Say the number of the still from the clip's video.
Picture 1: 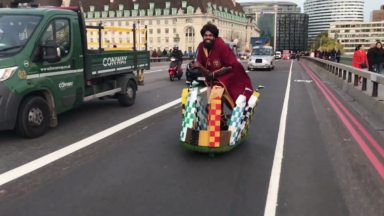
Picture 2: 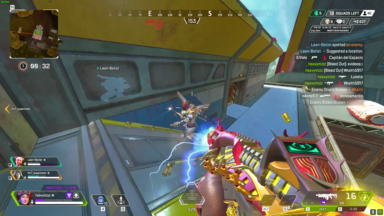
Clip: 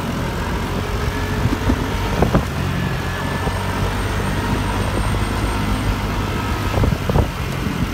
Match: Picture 1